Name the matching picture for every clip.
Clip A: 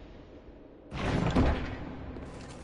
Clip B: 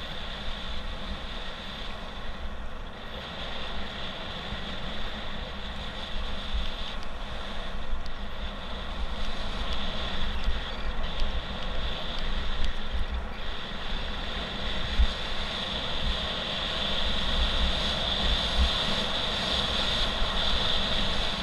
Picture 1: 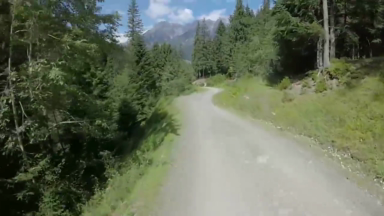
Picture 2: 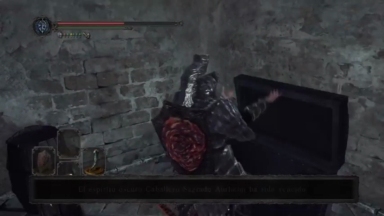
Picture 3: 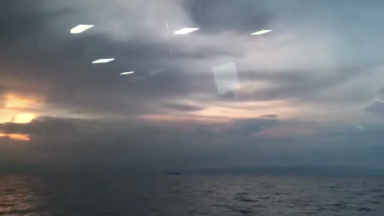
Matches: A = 2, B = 1